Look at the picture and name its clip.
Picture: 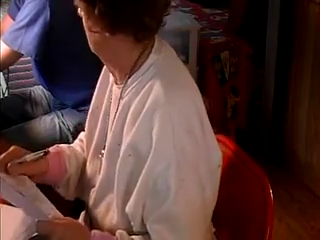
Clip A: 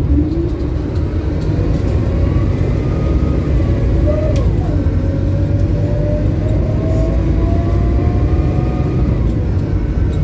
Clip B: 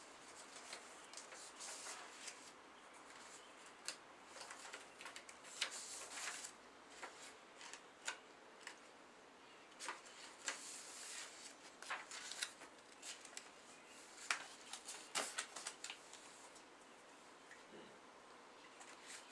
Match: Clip B